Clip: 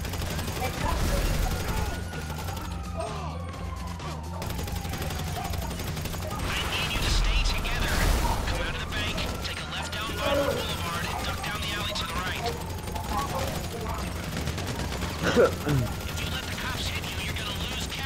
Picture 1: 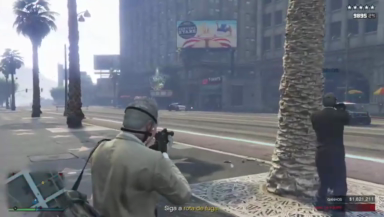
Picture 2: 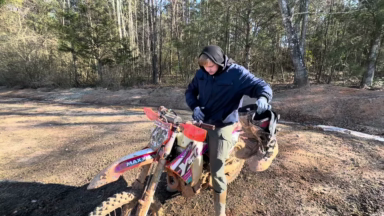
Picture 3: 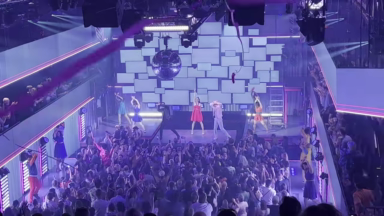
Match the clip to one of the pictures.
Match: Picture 1